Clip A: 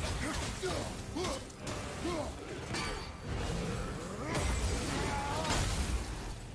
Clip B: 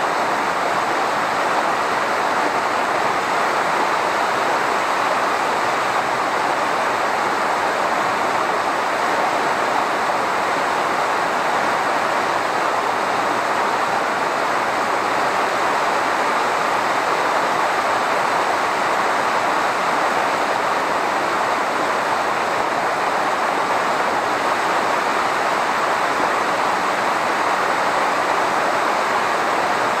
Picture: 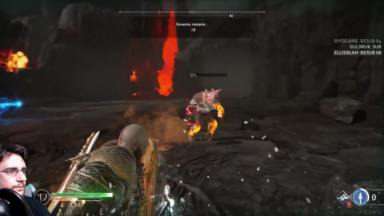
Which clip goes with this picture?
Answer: A